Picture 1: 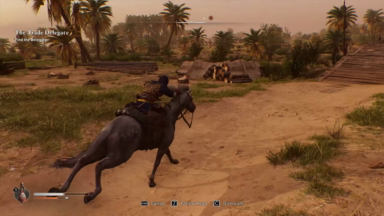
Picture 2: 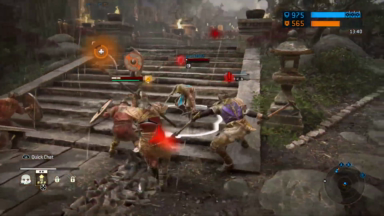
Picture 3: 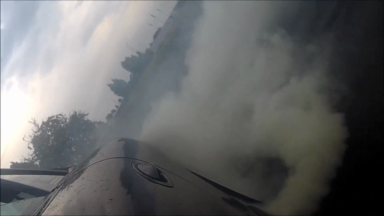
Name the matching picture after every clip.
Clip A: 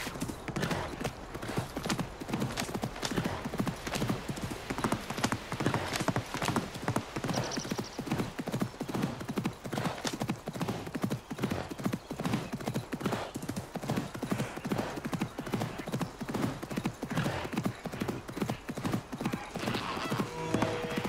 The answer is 1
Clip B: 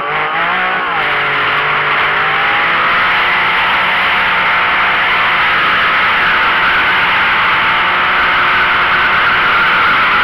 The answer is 3